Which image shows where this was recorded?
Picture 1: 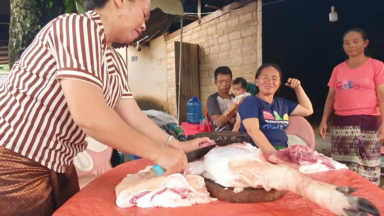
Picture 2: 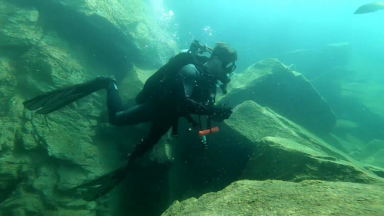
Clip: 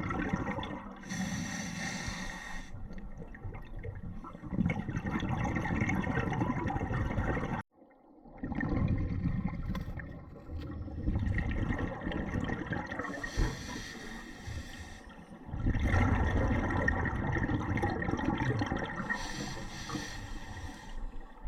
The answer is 2